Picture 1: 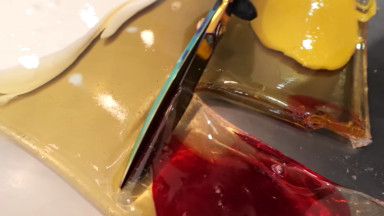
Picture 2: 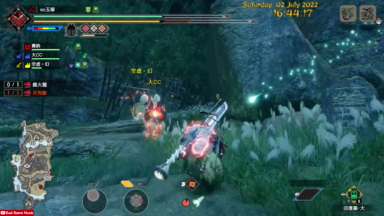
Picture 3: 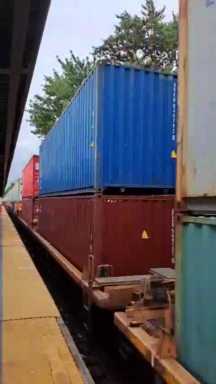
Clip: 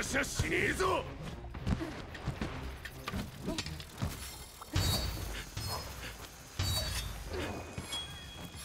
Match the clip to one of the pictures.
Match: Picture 2